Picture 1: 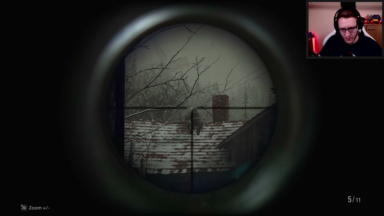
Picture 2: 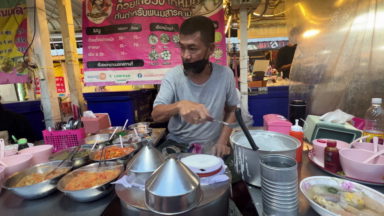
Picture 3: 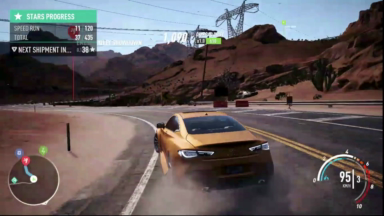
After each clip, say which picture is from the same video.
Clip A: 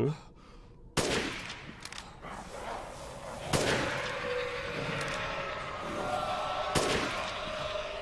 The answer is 1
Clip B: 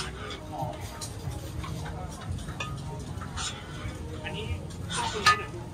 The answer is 2